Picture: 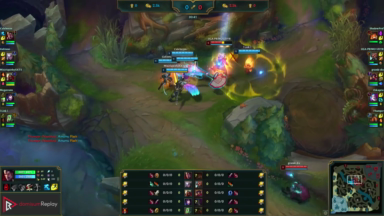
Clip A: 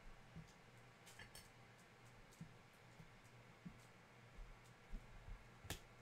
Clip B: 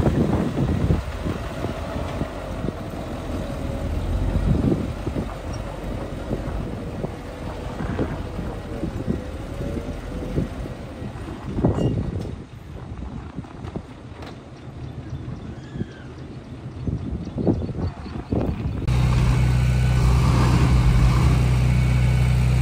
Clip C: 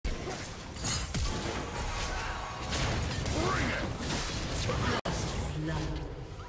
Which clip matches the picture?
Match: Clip C